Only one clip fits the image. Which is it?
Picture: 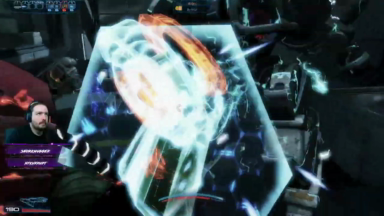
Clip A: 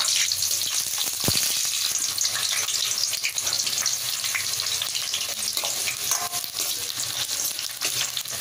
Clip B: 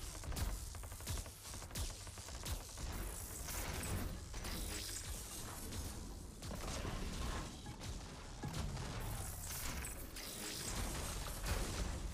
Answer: B